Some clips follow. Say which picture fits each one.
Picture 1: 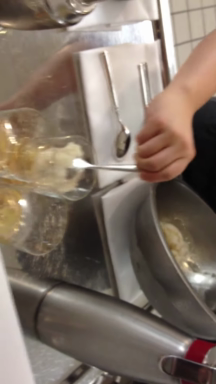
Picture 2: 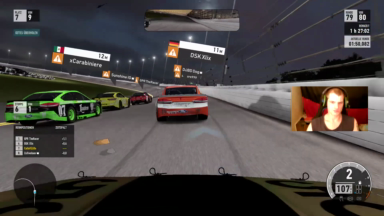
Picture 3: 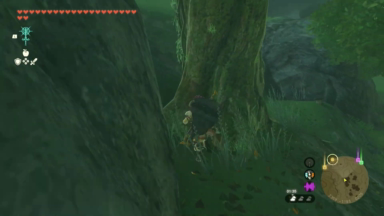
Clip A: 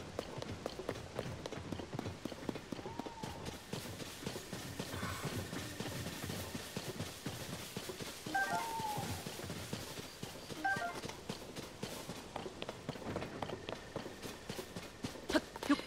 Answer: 3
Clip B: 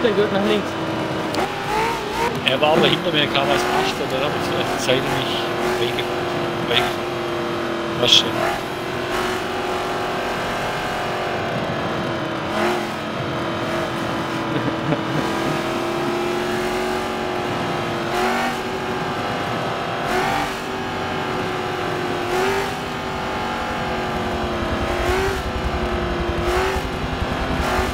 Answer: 2